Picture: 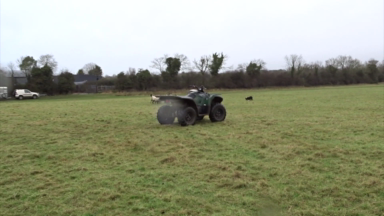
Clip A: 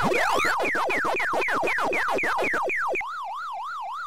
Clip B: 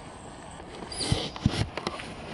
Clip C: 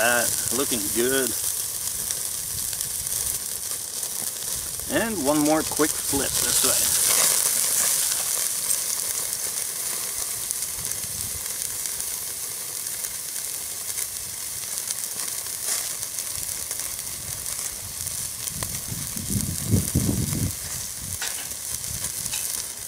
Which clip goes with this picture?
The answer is B